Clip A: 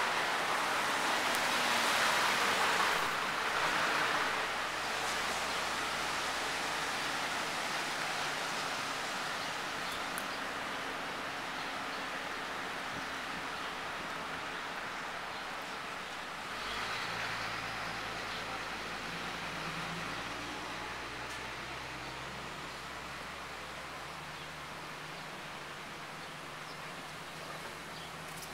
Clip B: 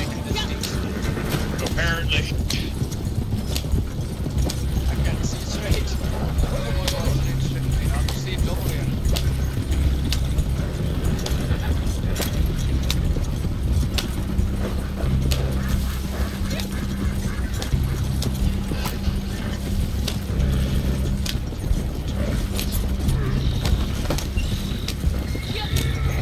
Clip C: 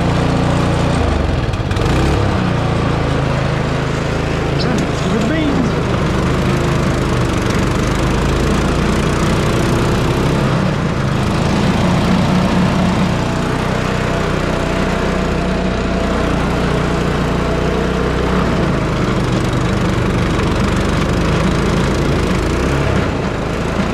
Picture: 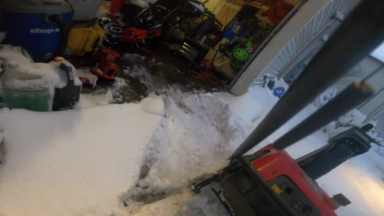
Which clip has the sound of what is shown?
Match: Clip C